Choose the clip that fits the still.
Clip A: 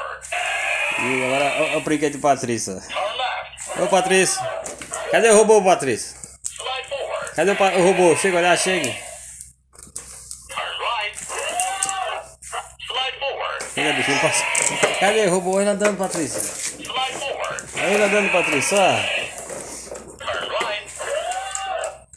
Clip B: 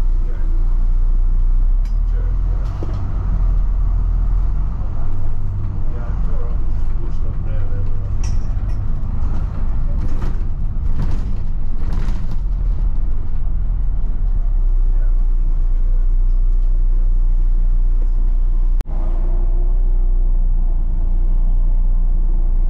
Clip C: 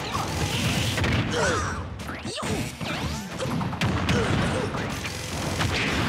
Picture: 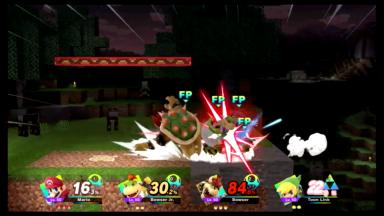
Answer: C